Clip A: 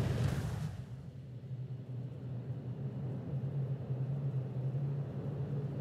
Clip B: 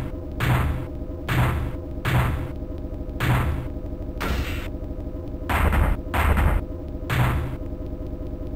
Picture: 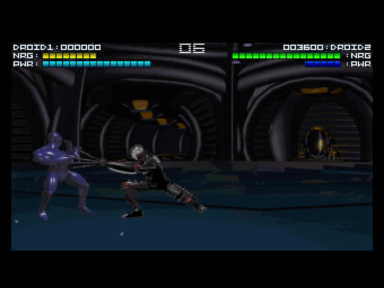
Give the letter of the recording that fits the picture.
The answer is B